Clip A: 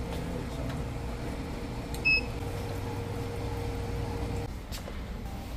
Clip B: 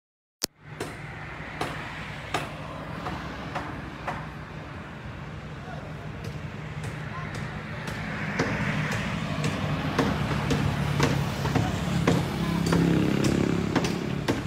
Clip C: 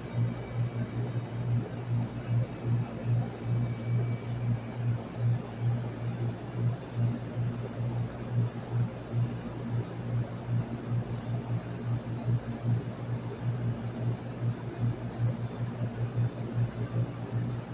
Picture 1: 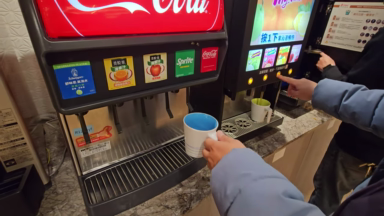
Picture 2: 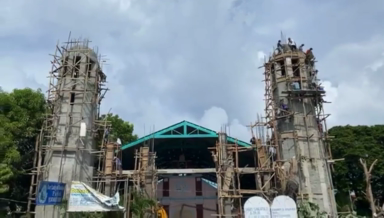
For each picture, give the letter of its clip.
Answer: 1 A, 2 B